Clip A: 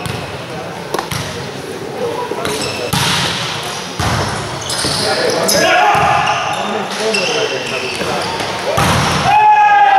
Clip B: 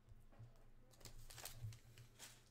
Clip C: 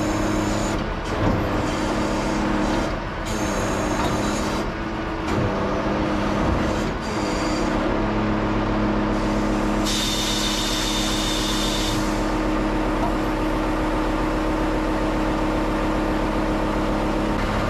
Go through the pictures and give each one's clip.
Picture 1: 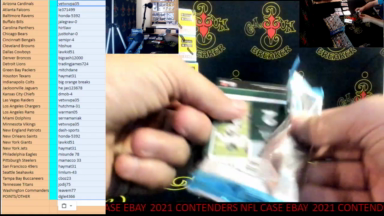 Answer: B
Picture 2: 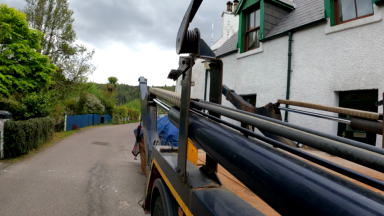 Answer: C